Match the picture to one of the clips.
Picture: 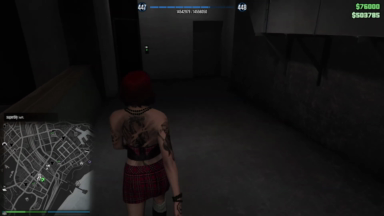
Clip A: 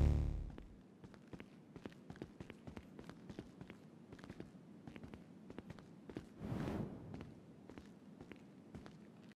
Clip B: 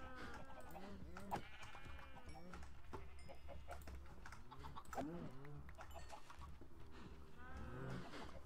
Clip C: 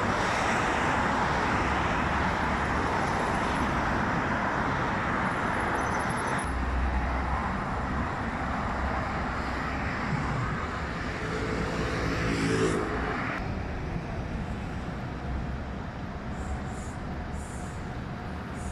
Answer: A